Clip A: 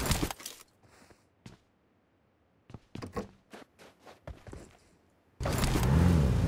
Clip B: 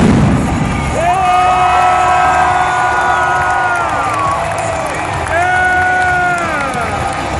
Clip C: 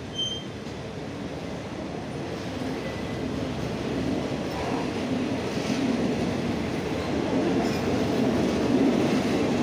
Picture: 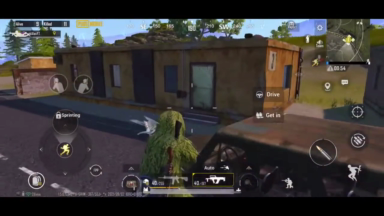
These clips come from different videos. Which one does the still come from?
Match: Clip A